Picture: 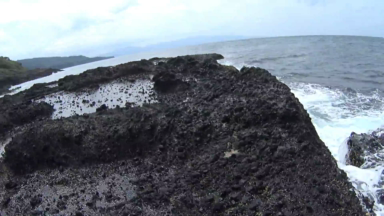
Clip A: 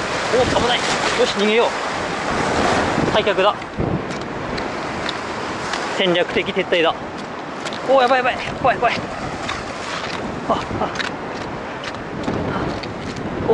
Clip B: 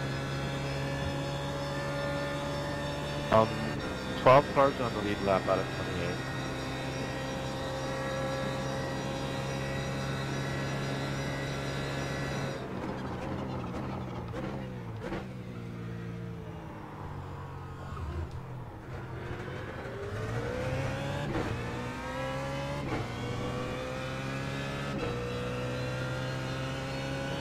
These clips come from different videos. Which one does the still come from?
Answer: A